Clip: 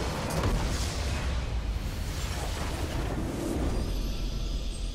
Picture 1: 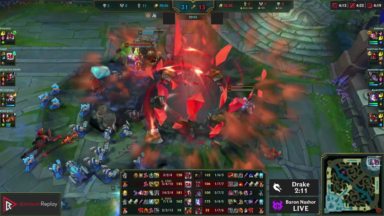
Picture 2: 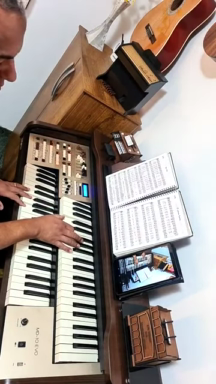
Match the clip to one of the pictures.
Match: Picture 1